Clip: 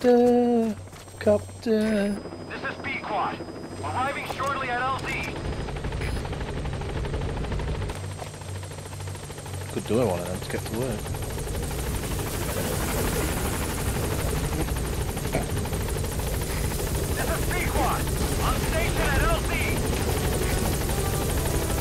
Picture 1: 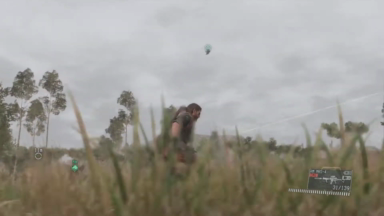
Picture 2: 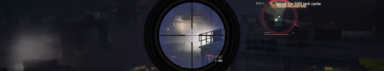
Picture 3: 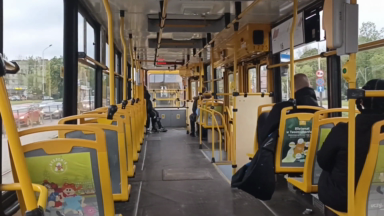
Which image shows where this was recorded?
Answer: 1